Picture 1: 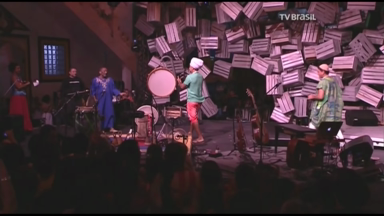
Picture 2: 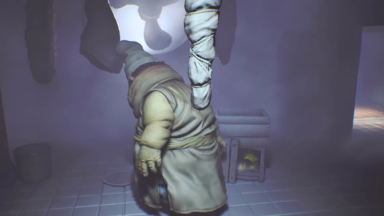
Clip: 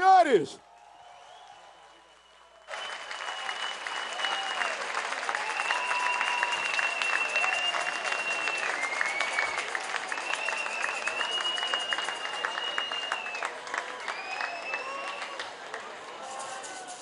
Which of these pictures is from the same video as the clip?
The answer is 1